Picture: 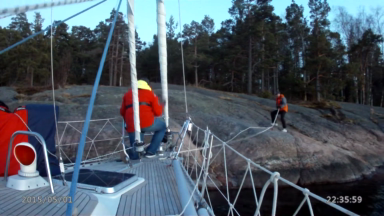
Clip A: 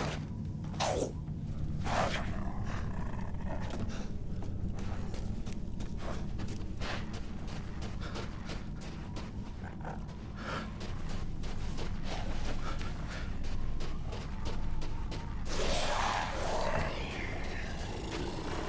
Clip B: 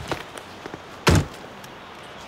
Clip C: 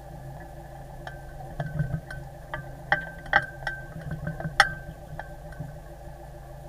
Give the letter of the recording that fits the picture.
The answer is C